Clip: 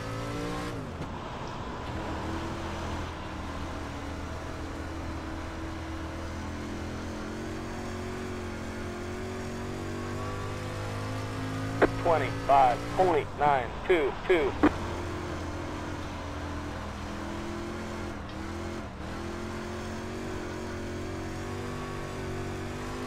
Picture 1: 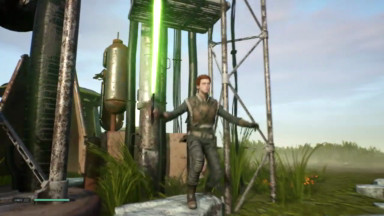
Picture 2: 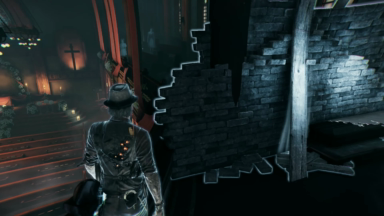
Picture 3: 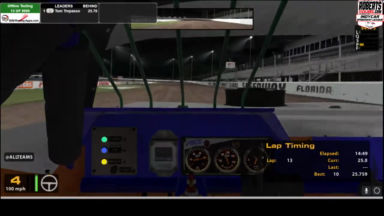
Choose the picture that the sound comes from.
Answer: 3